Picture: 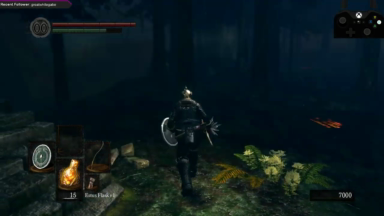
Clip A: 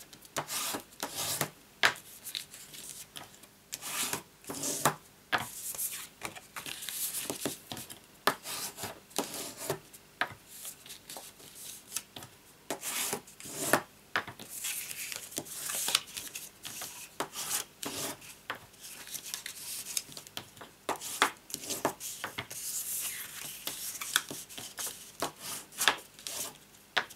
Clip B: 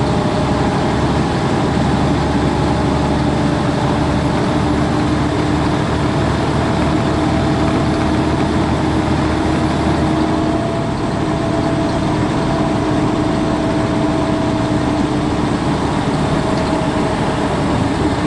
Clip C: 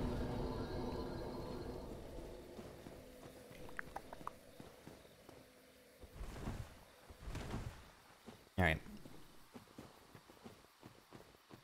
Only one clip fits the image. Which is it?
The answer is C